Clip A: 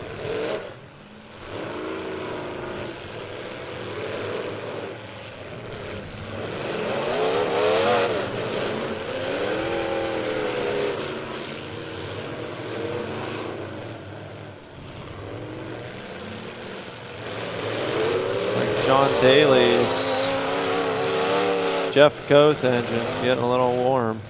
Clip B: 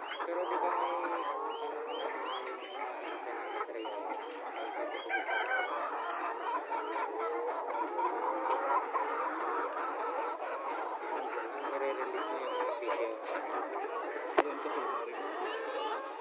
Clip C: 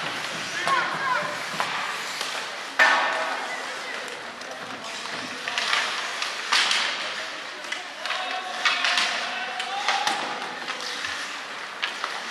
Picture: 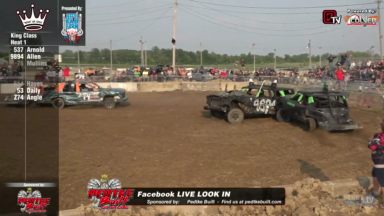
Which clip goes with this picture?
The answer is A